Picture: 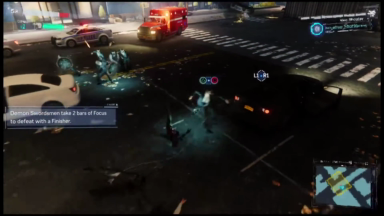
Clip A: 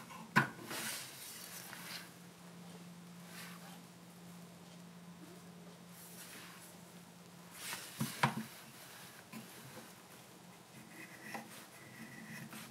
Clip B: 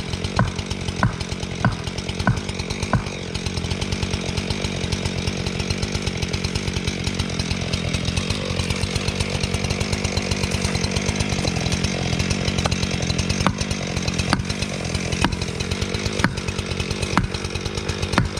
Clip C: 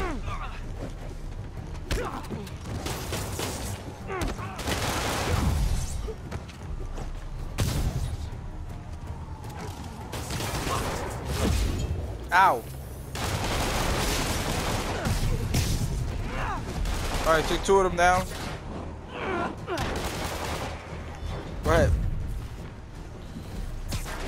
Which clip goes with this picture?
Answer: C